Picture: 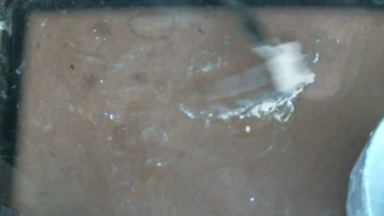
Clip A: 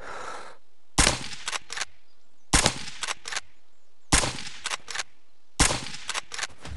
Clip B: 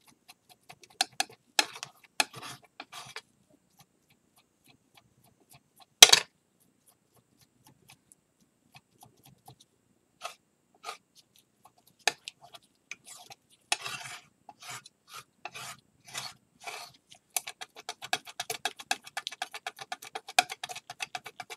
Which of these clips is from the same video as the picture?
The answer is B